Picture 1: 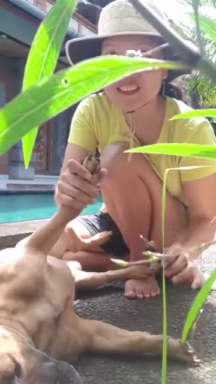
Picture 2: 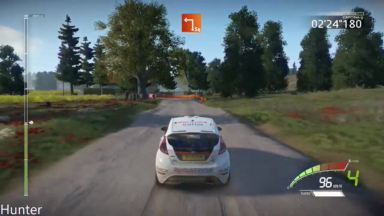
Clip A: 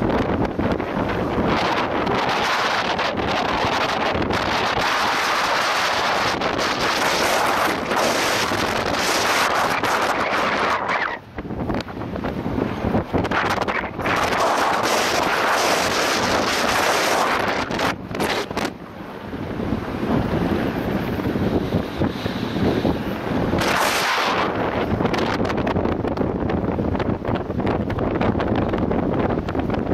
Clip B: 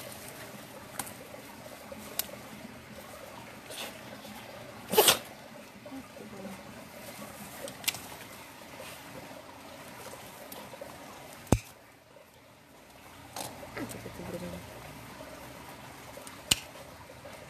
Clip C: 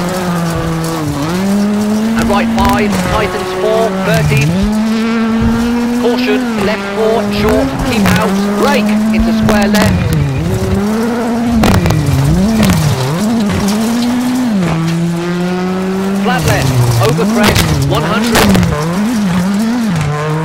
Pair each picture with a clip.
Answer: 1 B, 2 C